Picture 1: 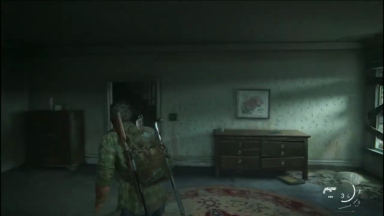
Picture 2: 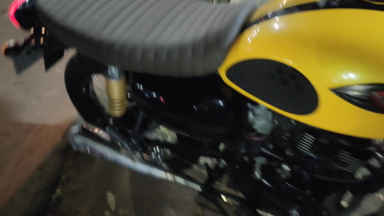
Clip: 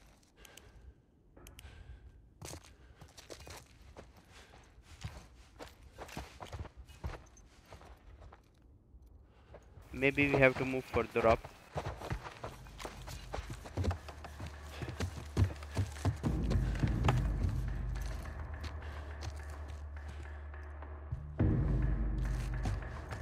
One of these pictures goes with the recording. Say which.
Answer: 1